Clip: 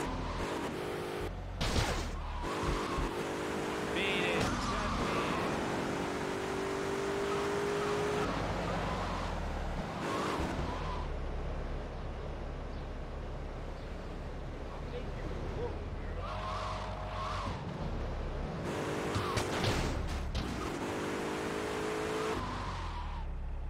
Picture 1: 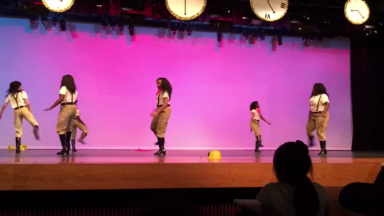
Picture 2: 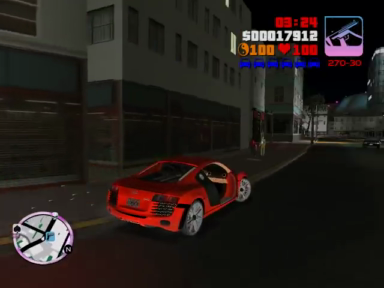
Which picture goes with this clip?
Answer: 2